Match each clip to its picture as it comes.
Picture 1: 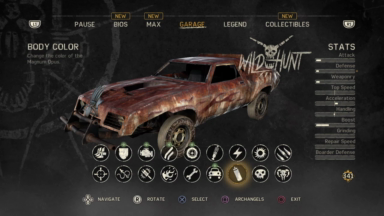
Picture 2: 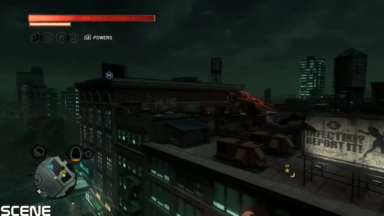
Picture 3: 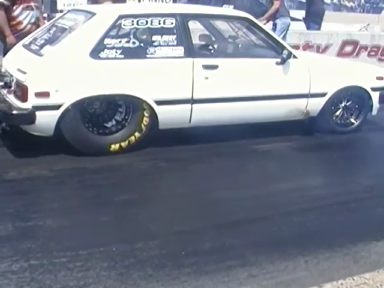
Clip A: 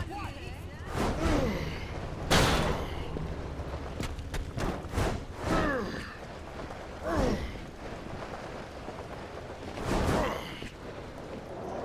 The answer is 2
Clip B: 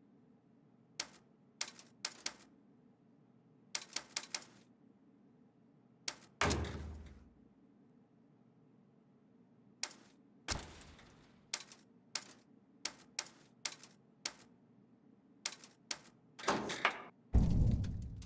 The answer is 1